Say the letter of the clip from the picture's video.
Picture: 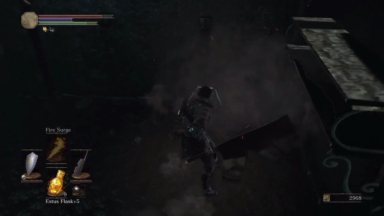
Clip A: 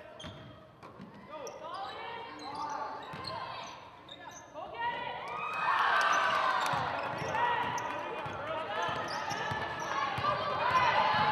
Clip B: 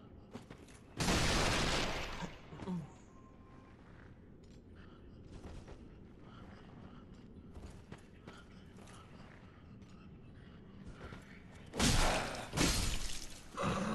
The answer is B